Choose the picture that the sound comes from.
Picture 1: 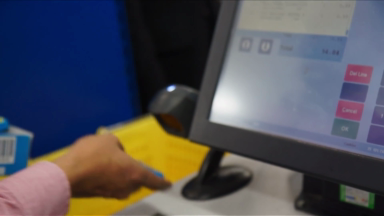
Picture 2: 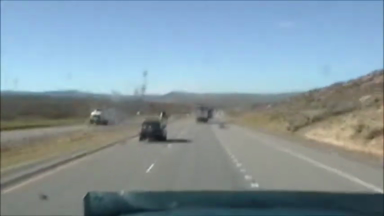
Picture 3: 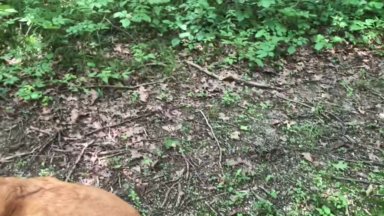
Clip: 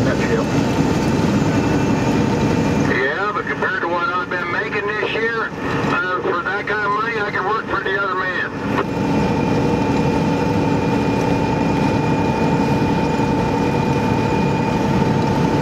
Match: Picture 2